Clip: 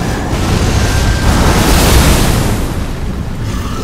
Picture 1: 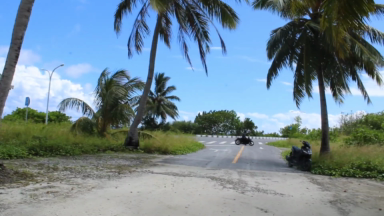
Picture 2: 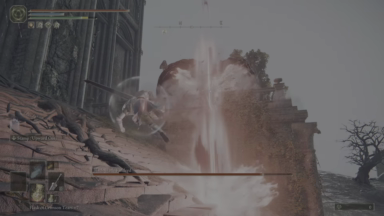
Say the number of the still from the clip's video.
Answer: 2